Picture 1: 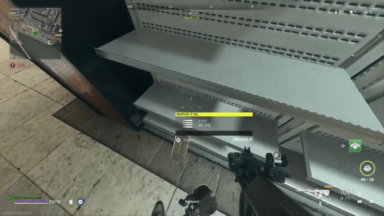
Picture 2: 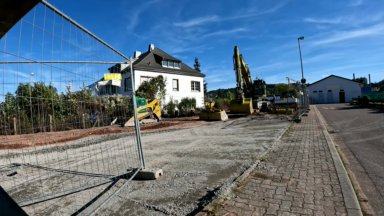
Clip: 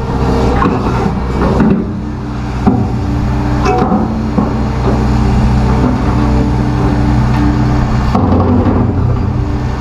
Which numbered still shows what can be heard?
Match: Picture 2